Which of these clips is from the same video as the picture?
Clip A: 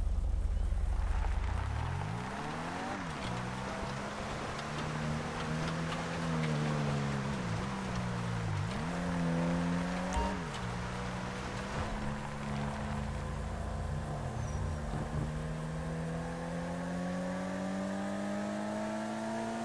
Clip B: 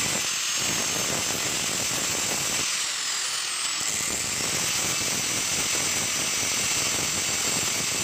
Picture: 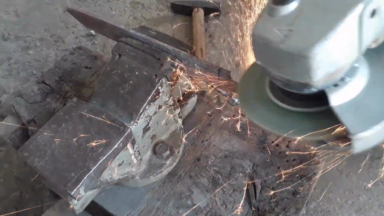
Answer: B